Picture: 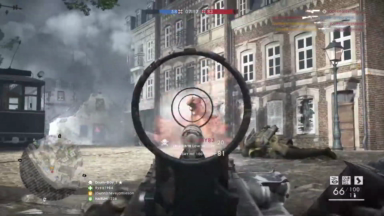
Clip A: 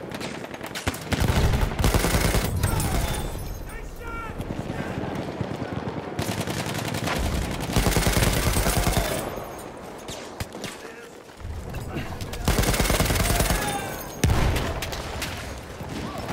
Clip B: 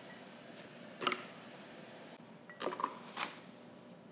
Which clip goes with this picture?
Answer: A